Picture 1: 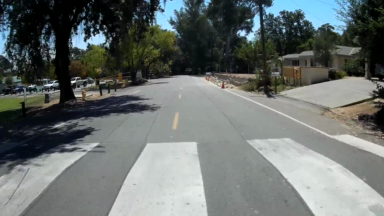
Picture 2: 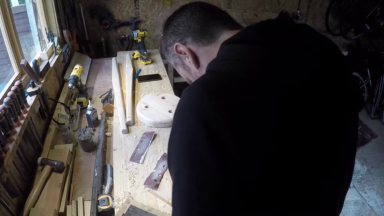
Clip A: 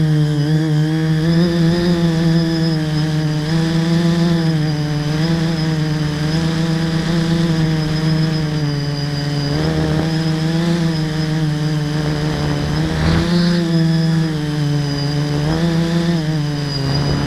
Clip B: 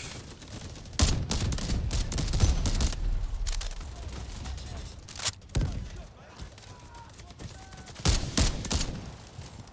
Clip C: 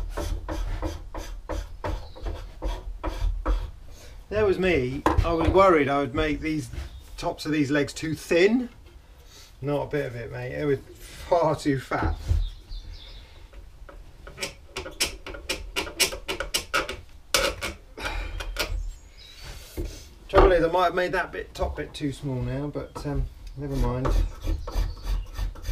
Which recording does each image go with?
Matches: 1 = A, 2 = C